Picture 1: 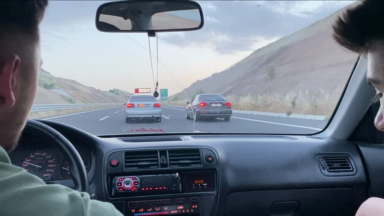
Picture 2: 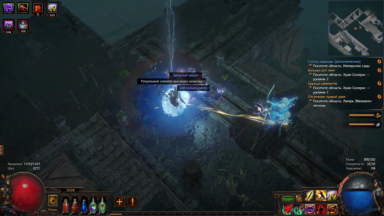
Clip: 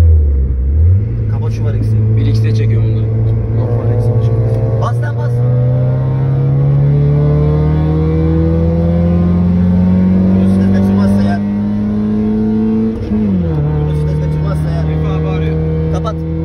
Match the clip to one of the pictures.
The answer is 1